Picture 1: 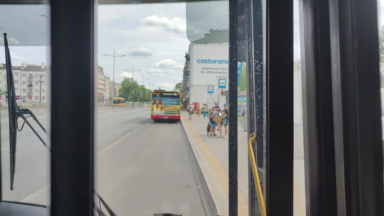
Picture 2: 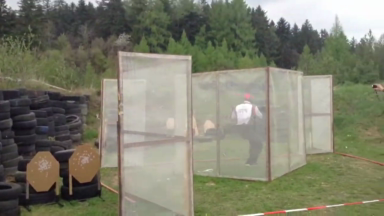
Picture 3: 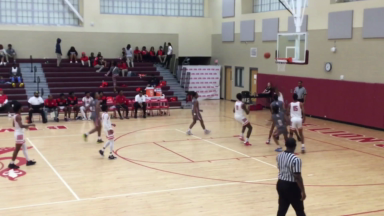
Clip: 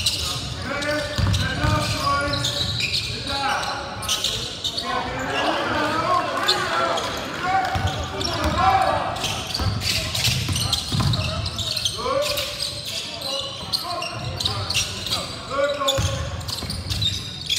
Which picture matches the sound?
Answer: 3